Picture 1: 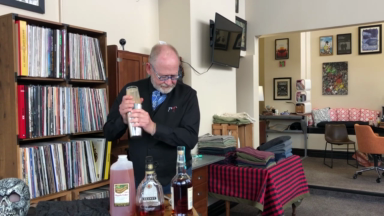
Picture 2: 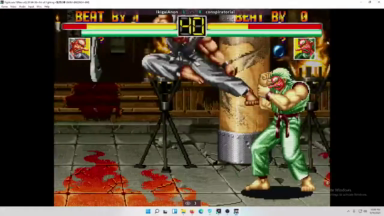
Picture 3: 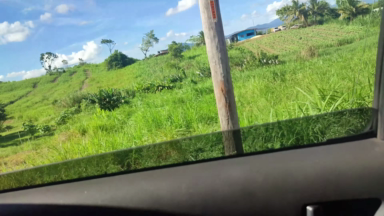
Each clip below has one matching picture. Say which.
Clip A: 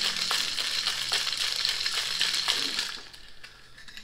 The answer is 1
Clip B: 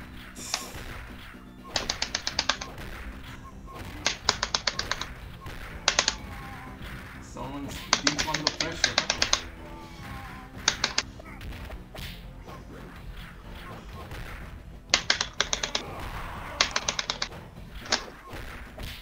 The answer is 2